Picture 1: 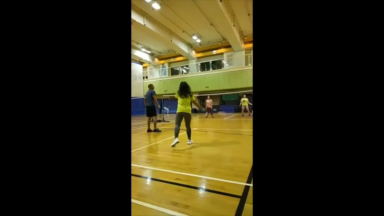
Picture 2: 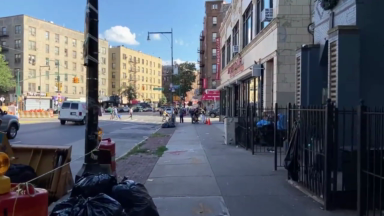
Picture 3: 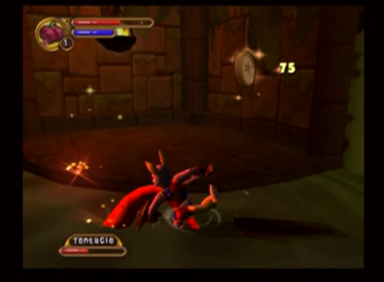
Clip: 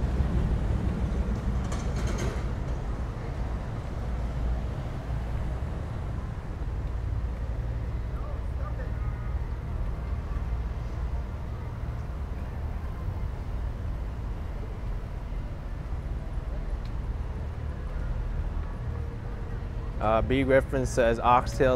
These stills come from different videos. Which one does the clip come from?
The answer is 2